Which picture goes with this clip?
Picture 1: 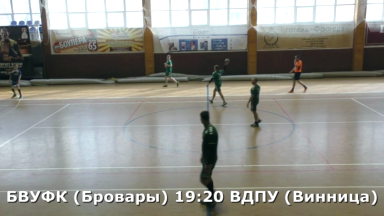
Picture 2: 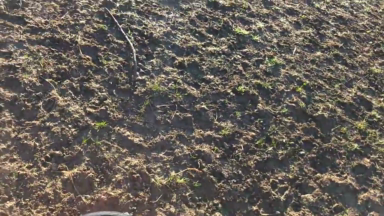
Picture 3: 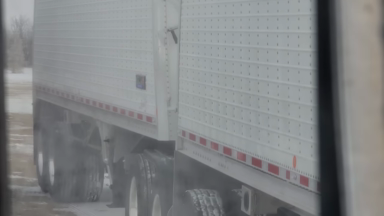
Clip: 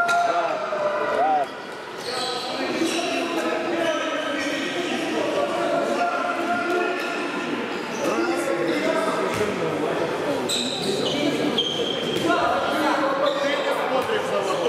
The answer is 1